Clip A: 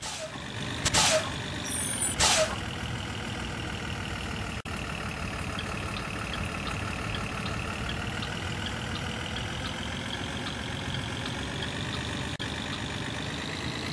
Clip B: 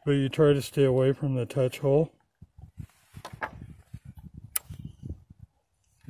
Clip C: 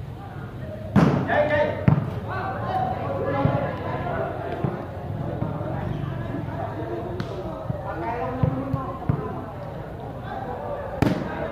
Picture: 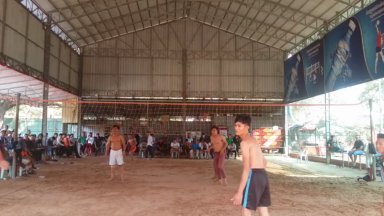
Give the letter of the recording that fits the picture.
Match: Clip C